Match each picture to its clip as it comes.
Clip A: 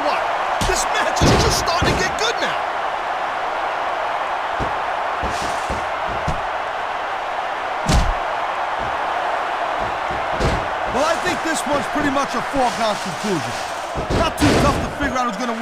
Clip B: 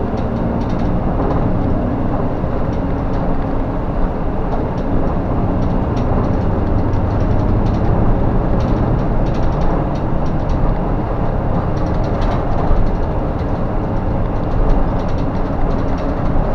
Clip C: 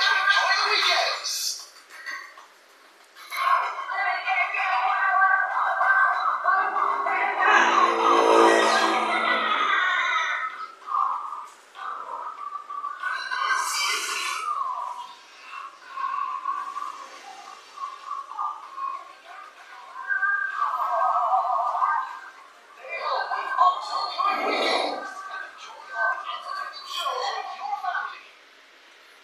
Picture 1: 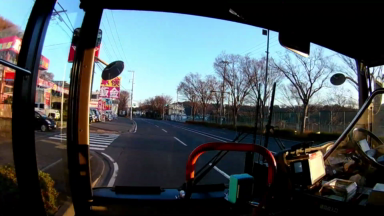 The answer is B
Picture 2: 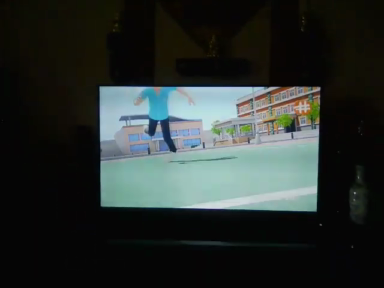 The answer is C